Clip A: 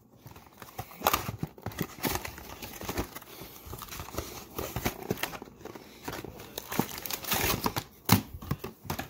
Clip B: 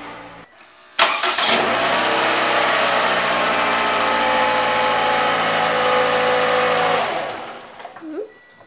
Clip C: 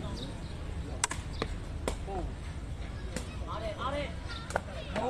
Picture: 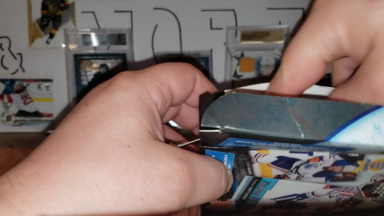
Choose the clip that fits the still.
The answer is A